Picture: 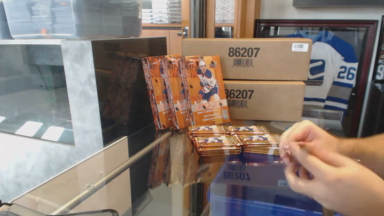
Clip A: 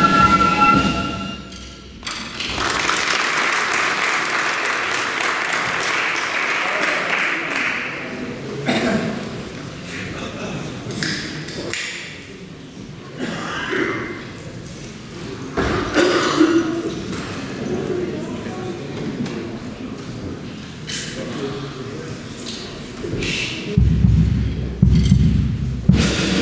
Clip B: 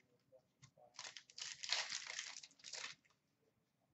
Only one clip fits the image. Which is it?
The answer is B